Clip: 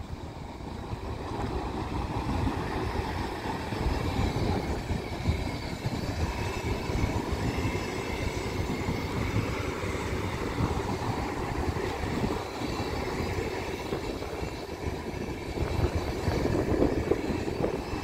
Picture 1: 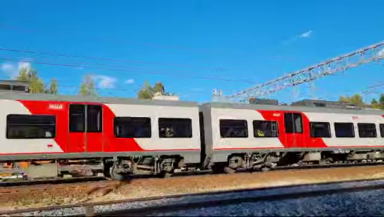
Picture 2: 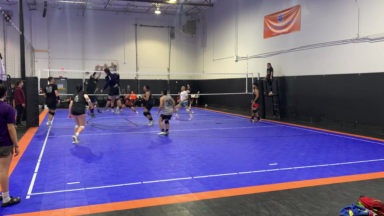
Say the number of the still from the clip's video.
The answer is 1